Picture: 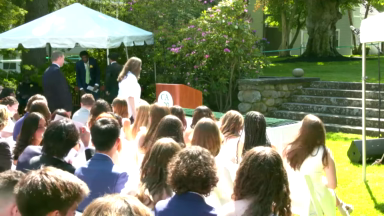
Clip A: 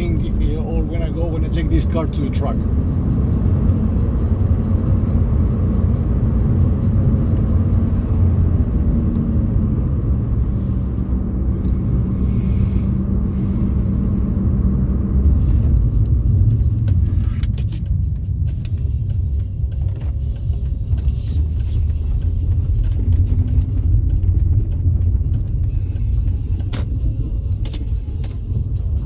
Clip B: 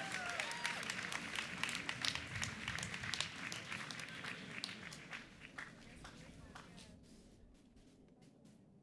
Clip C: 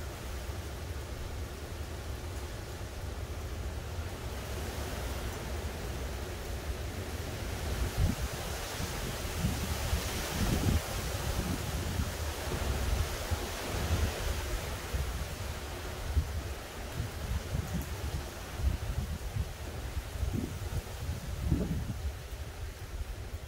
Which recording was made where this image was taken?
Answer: B